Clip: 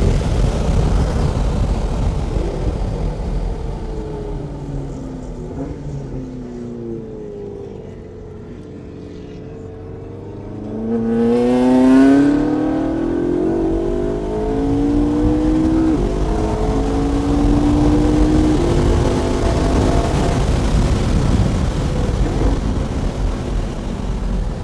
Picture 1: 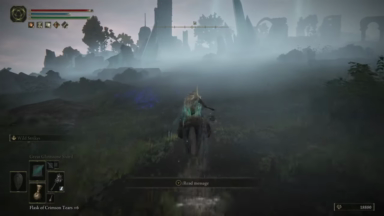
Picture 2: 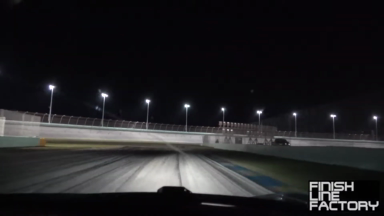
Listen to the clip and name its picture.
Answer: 2